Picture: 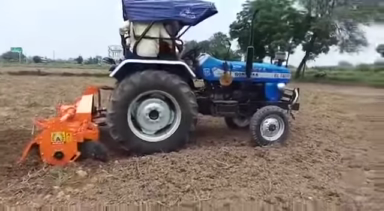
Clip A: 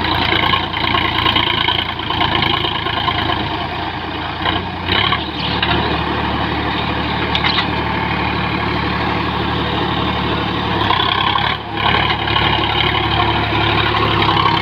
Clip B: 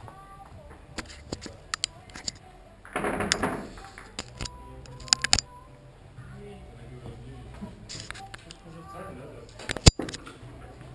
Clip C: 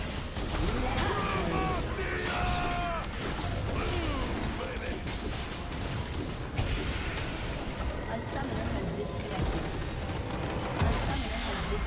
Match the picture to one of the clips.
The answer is A